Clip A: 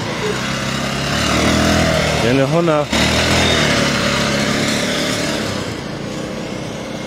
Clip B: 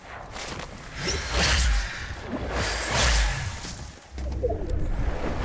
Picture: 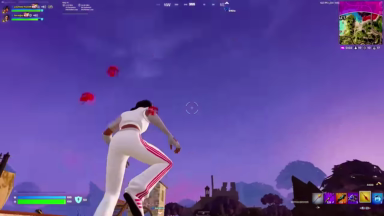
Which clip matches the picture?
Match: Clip B